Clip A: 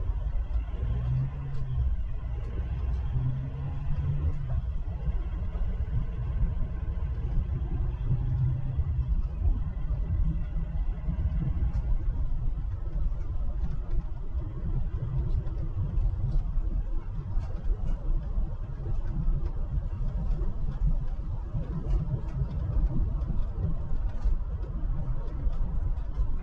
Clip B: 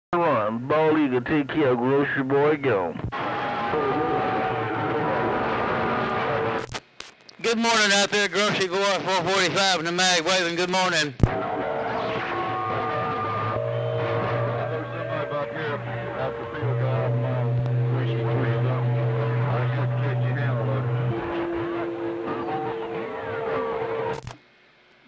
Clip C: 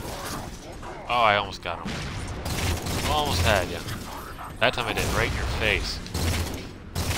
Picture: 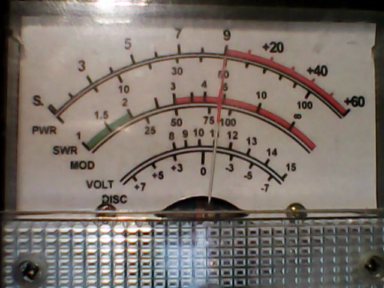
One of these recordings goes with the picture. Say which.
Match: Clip B